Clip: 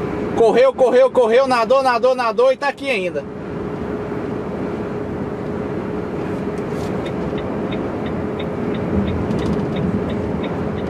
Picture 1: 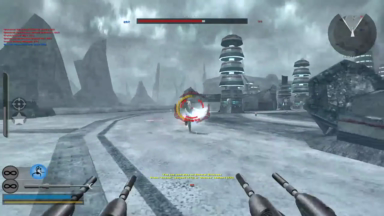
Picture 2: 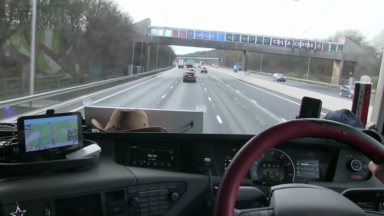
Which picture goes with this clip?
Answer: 2